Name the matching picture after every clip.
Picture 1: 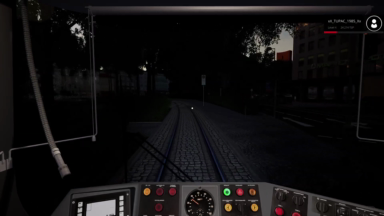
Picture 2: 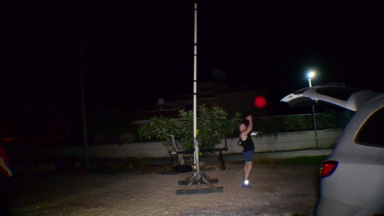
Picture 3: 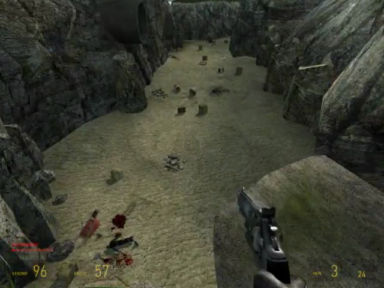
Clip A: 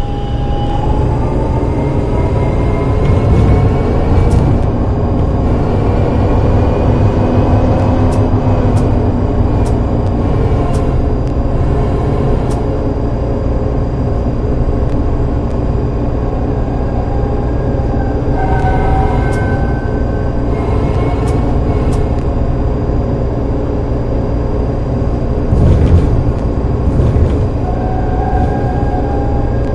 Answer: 1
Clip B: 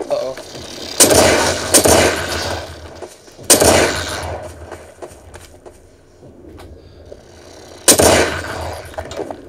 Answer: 3